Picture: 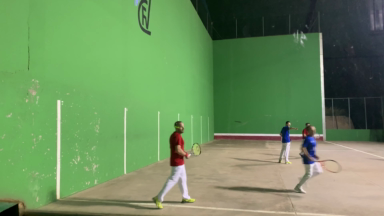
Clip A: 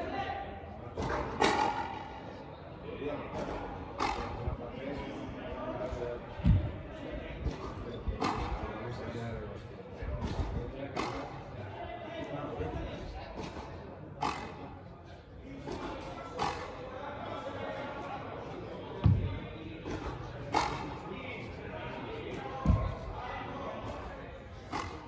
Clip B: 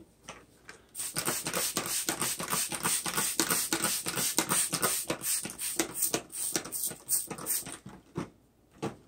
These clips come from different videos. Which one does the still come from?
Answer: A